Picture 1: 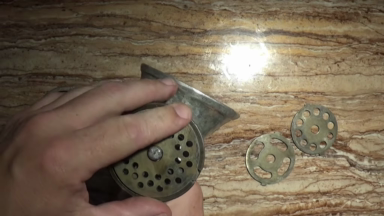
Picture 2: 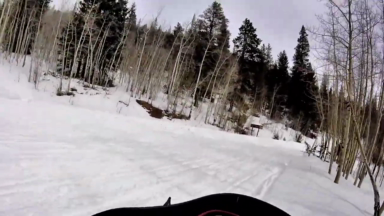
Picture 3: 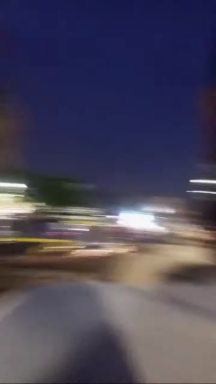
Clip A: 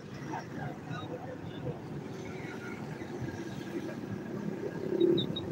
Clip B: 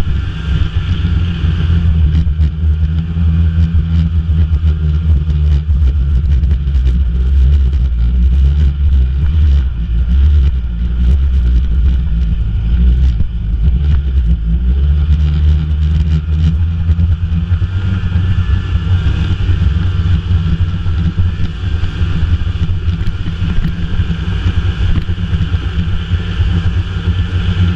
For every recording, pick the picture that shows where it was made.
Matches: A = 3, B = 2